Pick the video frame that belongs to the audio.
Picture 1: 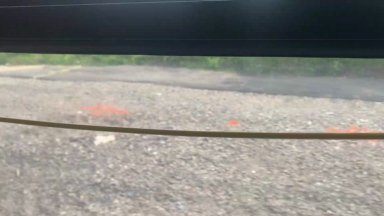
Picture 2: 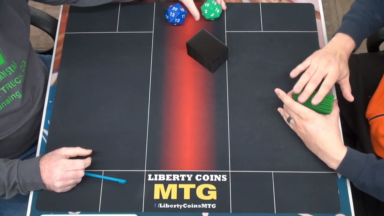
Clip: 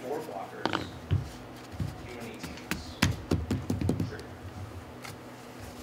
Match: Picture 2